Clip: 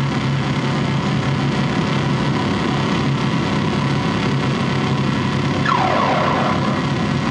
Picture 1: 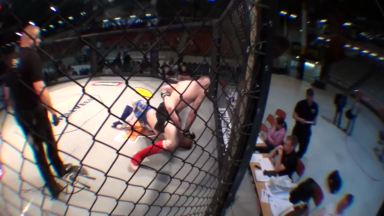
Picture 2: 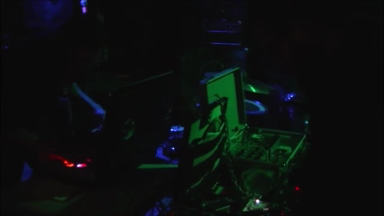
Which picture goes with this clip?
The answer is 2